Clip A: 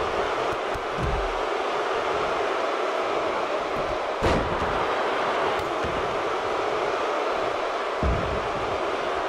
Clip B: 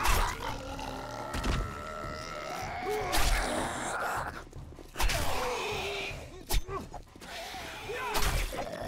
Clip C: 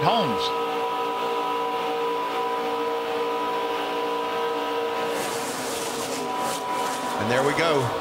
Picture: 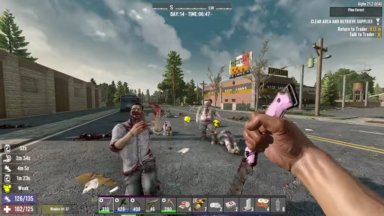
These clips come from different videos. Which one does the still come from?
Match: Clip B